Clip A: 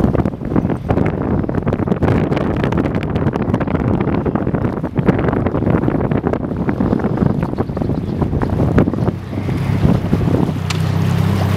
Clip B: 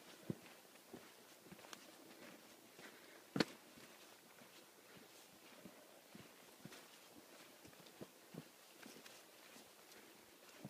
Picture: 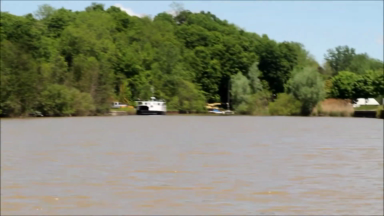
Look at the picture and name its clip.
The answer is A